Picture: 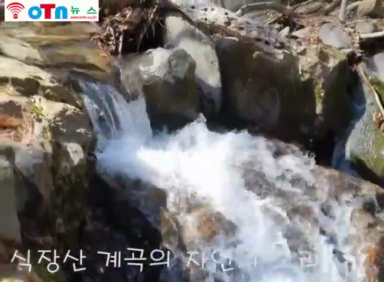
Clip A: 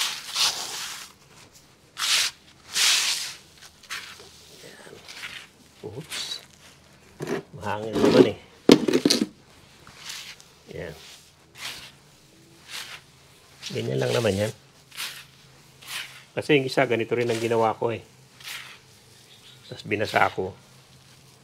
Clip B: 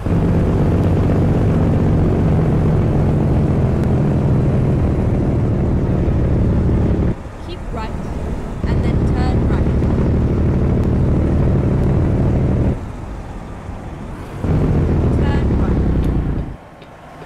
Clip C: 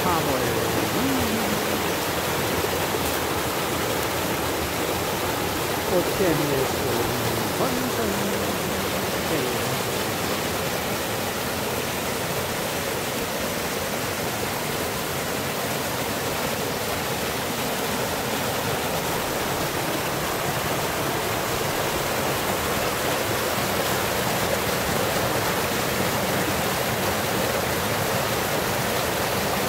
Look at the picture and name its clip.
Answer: C